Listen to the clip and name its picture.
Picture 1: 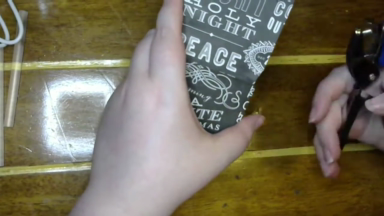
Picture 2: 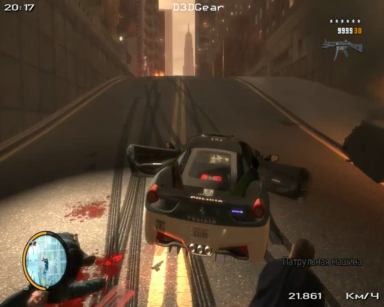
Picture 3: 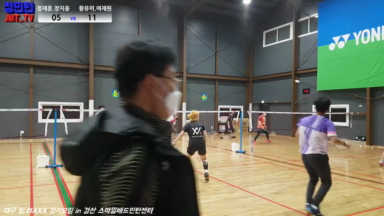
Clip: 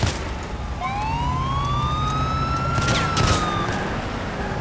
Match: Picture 2